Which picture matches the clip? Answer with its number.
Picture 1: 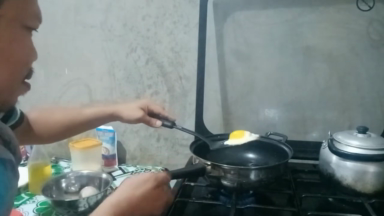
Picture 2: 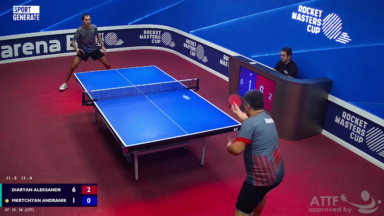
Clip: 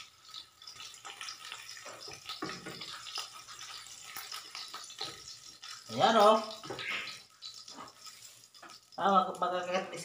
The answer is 1